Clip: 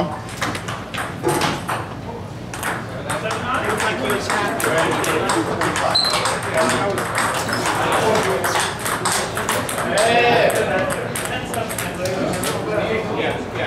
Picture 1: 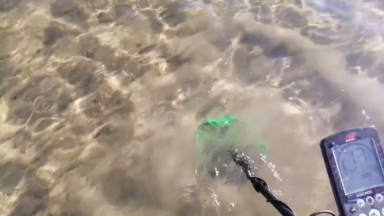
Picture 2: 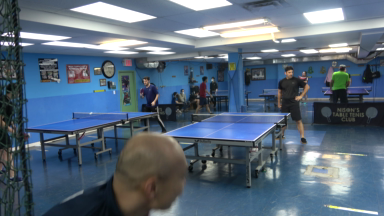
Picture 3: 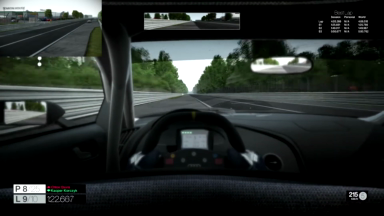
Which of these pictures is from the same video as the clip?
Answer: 2